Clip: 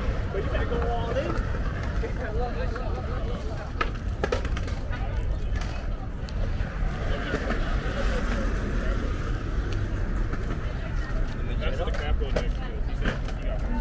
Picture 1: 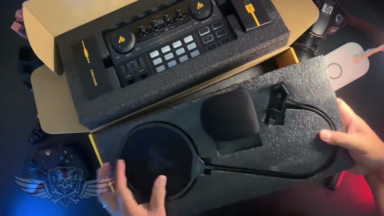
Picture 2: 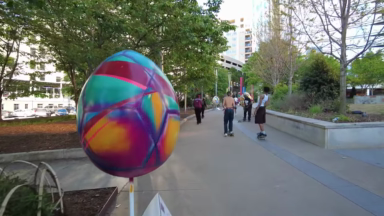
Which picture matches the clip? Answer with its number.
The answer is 2